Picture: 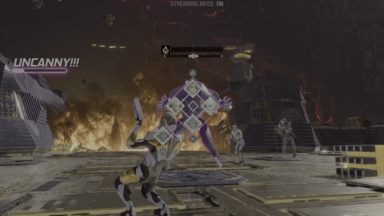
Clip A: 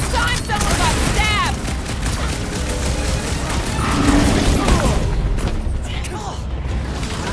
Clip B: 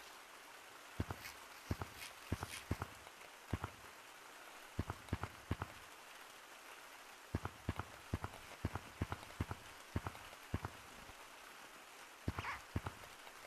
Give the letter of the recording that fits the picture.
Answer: A